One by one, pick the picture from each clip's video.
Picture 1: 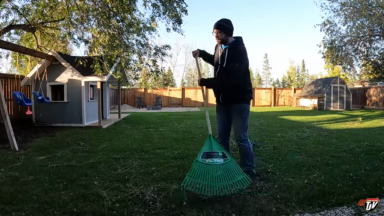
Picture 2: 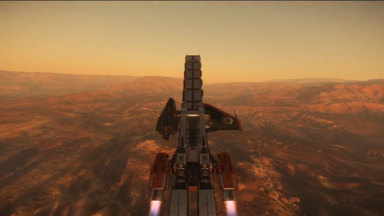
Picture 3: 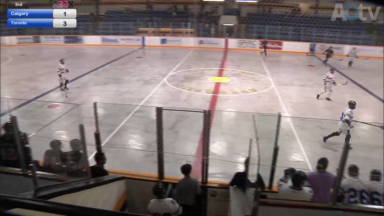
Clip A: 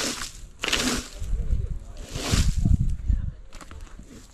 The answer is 1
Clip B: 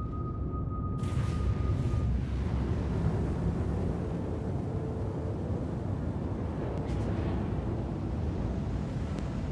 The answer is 2